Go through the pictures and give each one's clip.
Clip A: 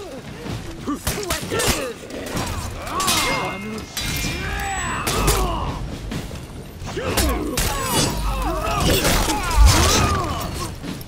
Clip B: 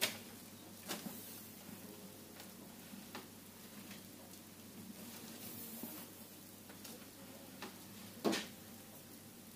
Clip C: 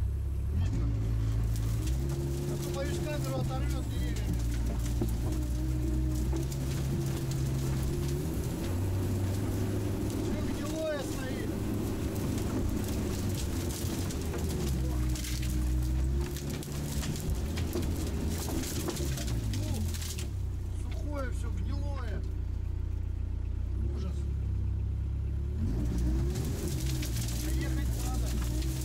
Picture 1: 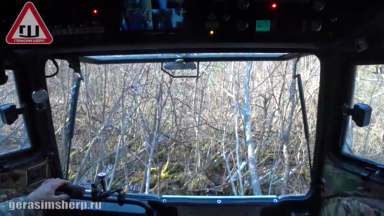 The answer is C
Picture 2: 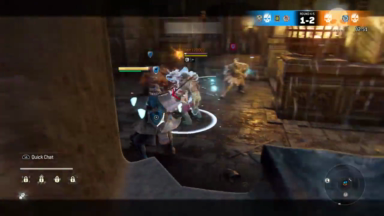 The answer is A